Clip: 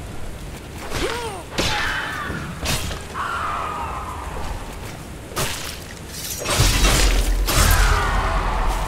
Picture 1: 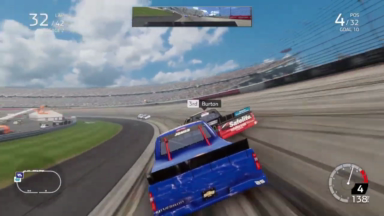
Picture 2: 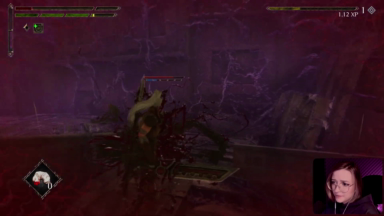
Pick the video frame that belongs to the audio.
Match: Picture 2